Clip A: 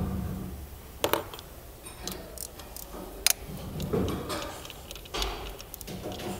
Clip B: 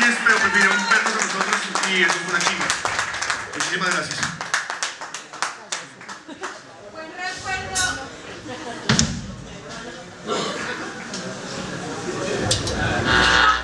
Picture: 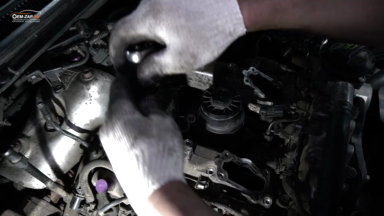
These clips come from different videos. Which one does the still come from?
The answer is A